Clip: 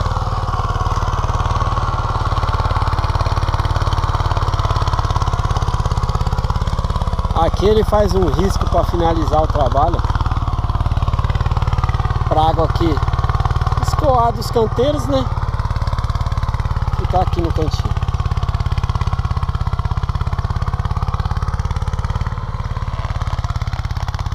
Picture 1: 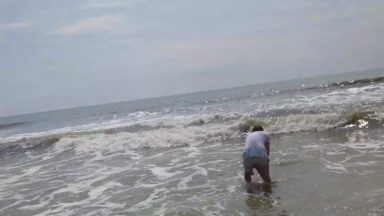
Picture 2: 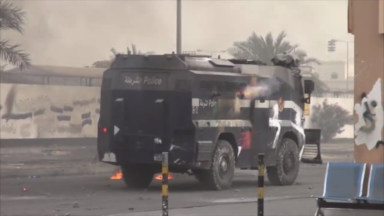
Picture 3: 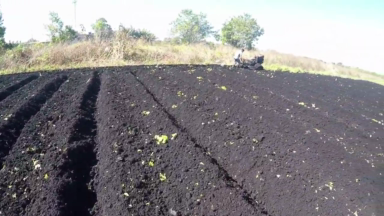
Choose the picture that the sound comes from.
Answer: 3